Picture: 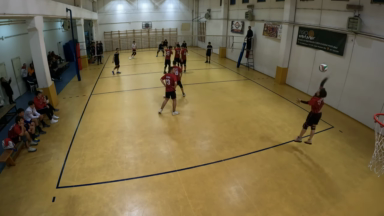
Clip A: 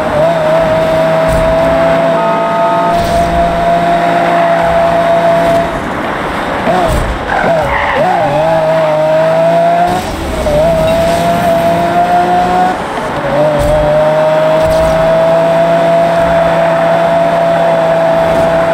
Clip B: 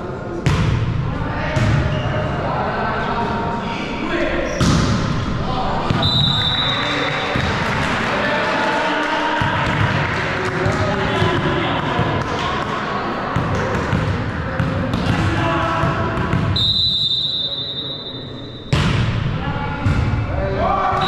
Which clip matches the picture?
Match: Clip B